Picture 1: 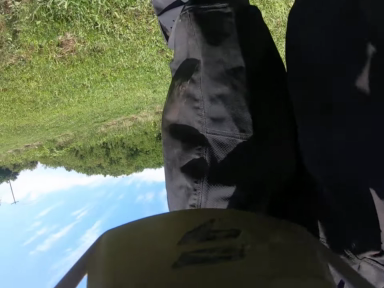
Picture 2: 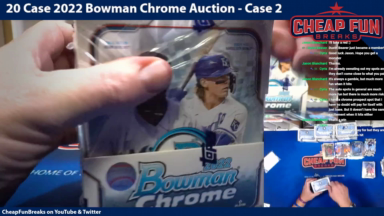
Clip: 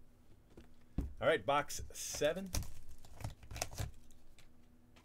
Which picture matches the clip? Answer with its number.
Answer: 2